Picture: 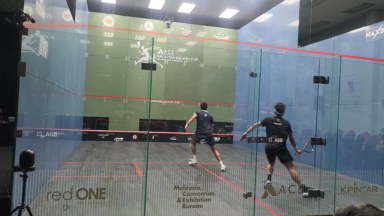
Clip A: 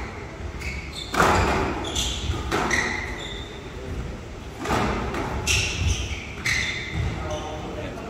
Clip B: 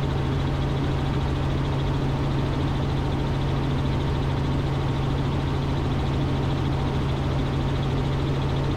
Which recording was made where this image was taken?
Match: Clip A